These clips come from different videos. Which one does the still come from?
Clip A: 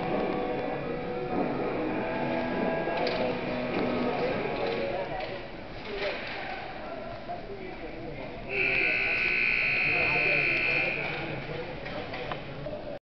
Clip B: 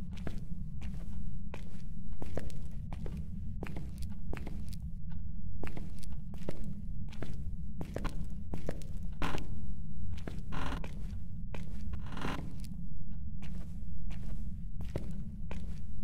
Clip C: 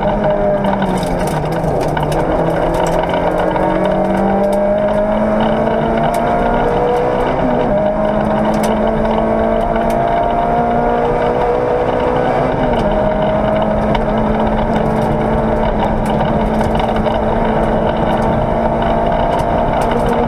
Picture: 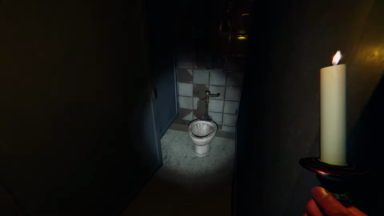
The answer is B